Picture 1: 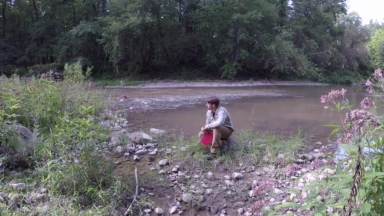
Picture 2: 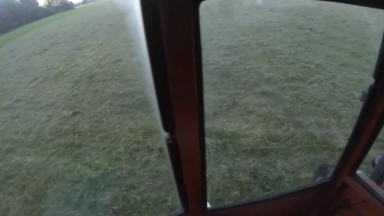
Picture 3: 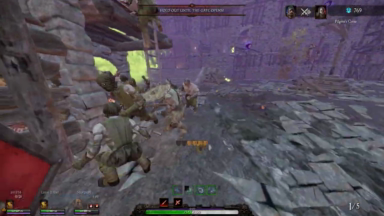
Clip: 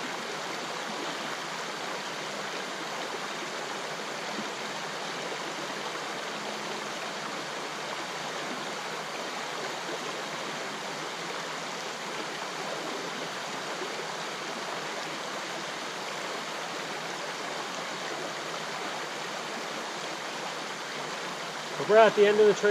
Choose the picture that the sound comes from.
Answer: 1